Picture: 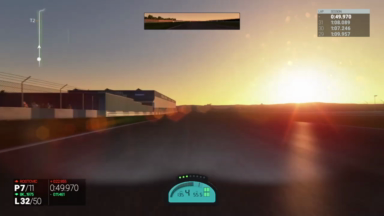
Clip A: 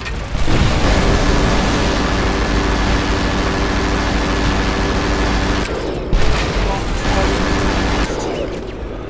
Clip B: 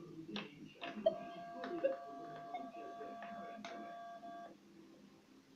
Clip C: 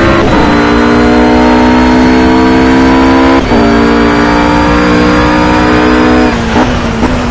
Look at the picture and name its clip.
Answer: C